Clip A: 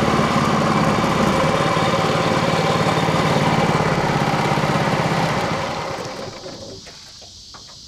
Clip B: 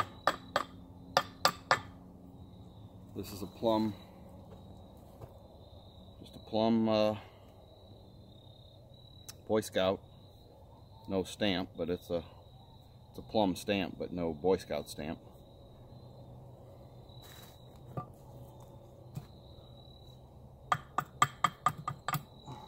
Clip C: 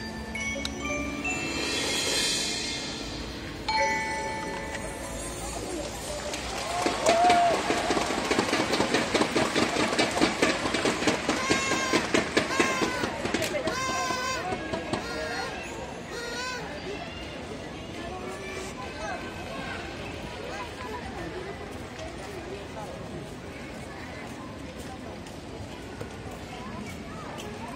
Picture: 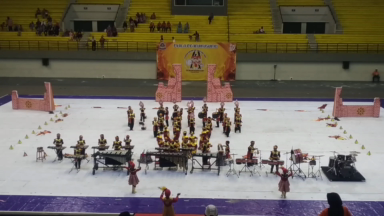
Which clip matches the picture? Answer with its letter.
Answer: C